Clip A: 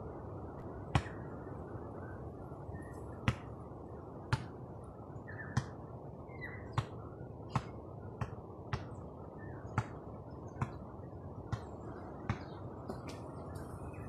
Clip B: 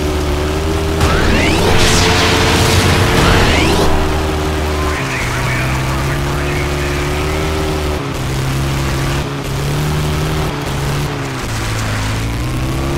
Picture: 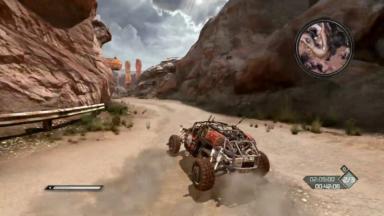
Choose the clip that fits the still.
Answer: B